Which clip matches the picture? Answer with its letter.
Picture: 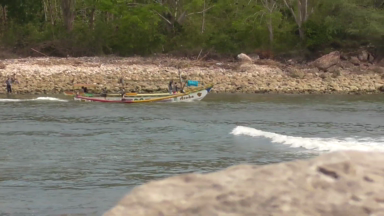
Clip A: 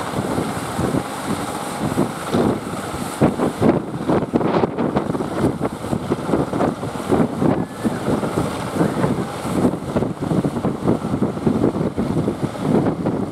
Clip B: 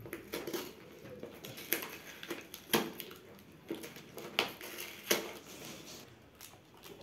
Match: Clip A